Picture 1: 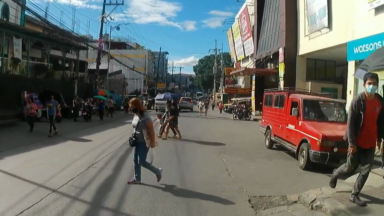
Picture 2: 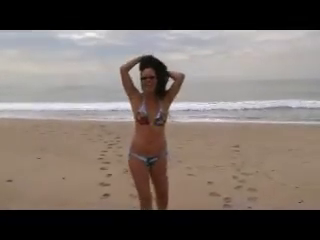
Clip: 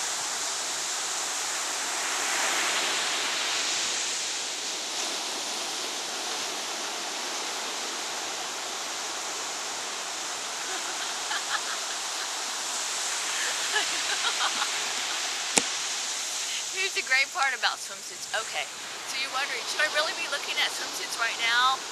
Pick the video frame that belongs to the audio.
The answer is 2